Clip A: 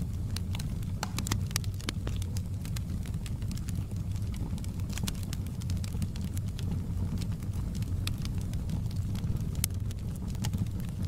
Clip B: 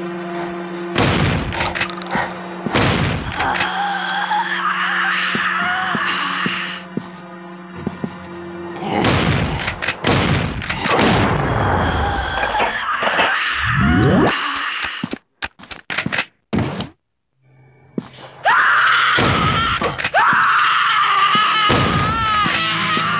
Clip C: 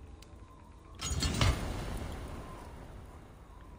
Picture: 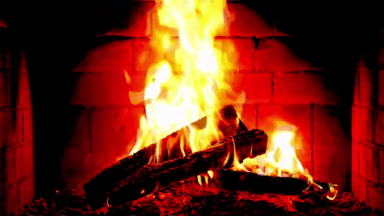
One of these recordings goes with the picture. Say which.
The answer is A